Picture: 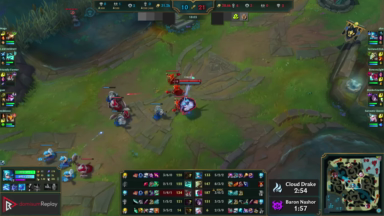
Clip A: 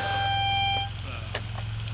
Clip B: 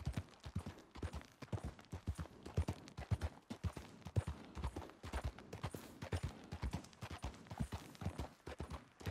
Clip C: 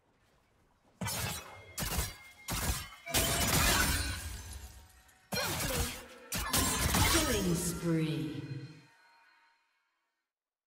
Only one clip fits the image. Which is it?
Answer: C